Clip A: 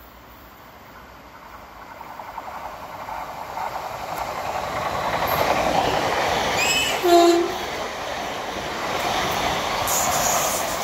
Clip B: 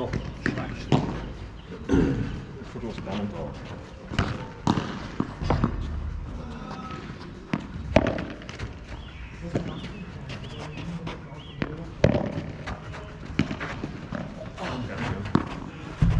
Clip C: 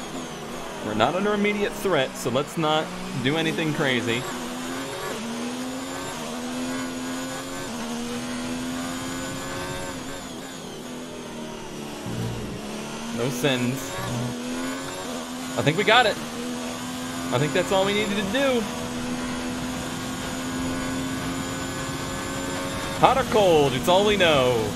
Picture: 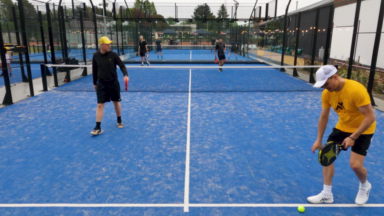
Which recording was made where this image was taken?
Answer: B